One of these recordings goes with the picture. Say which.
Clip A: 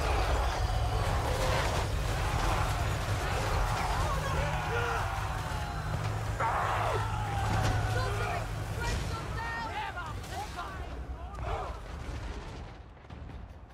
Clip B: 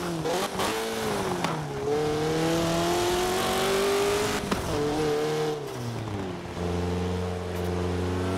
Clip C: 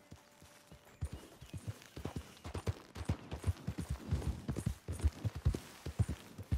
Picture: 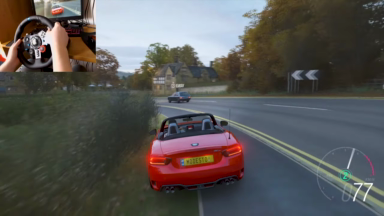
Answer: B